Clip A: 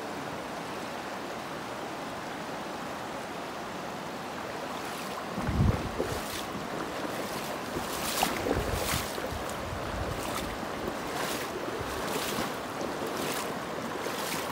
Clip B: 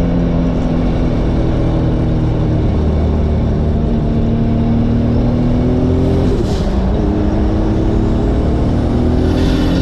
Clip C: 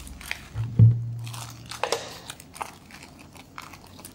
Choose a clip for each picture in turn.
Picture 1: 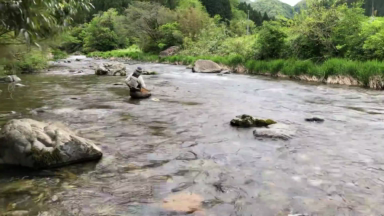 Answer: A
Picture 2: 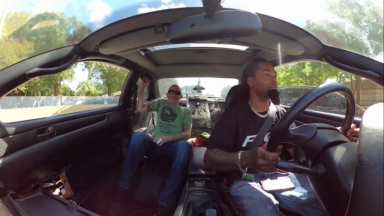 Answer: B